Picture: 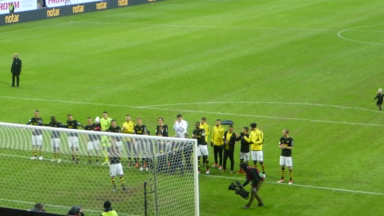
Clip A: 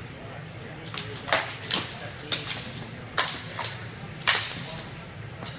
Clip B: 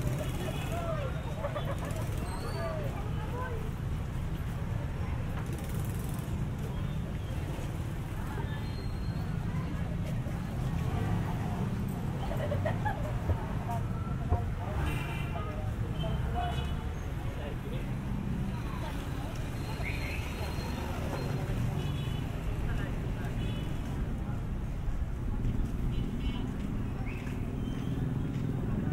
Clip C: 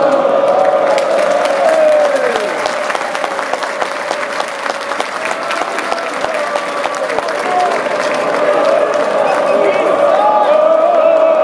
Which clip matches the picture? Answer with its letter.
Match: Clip C